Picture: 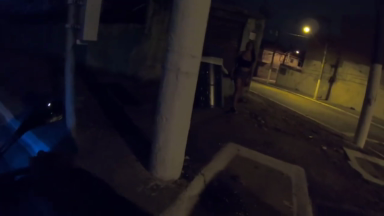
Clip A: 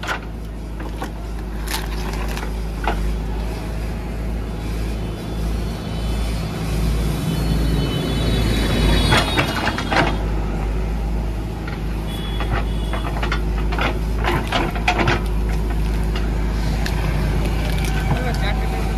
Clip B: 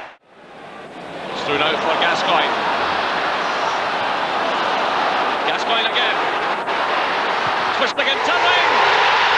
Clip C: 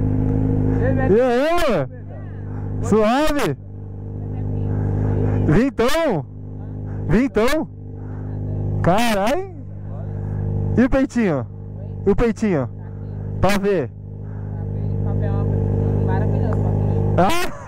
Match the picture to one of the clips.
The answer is C